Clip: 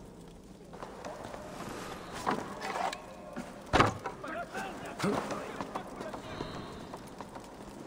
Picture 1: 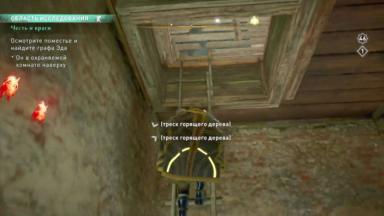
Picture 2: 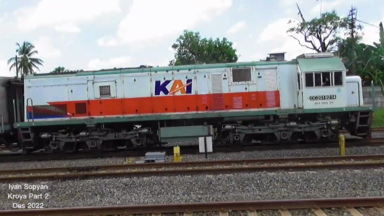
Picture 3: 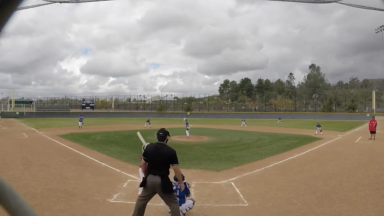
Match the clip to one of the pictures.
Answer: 1